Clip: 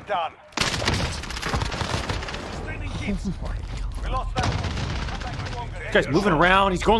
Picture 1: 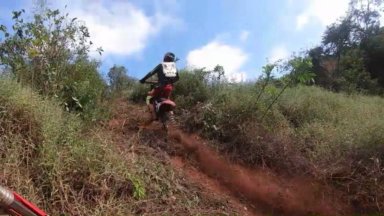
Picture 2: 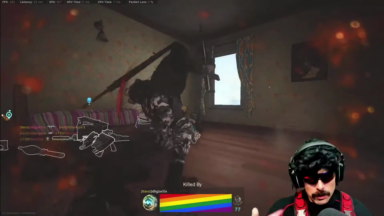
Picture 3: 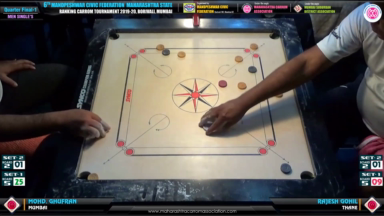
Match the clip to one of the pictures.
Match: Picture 2